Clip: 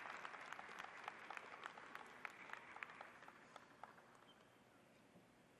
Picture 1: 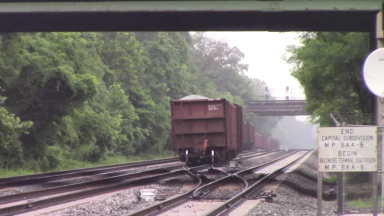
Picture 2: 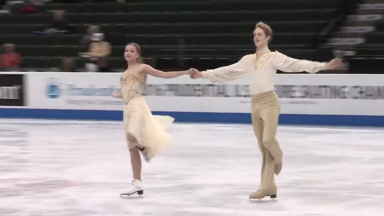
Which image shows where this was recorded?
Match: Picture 2